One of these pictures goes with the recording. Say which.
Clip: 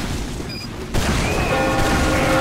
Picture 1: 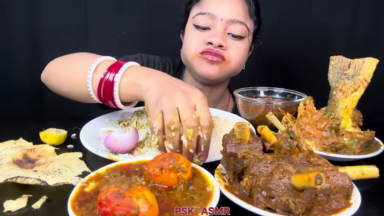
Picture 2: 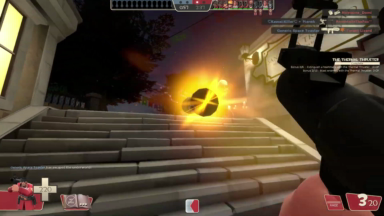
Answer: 2